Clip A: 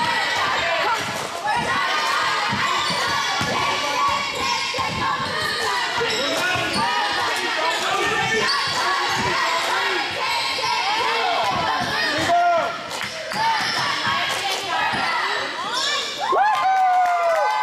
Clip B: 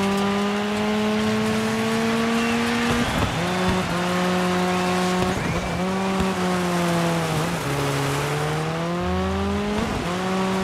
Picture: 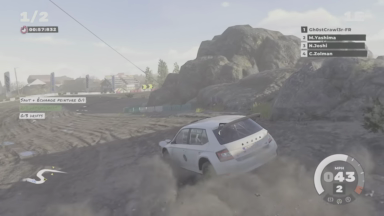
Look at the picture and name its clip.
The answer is B